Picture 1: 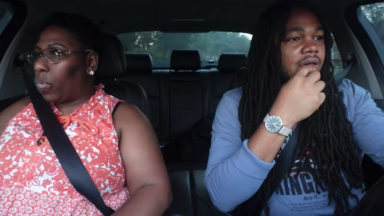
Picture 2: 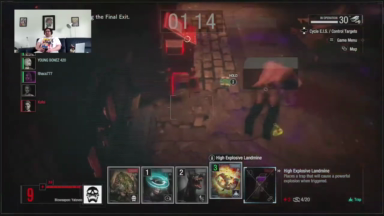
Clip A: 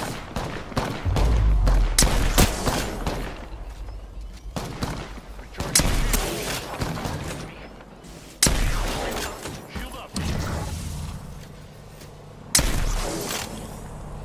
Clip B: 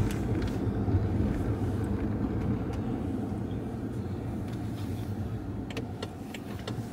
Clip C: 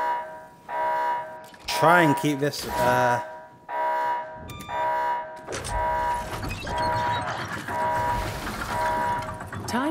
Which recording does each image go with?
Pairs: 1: B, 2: C